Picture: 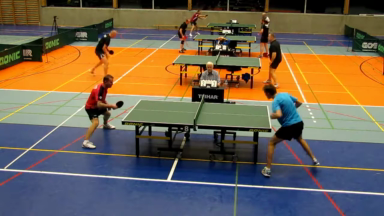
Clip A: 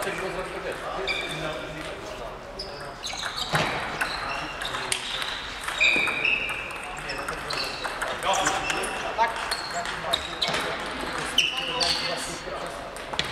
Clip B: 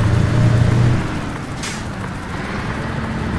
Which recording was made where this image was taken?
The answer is A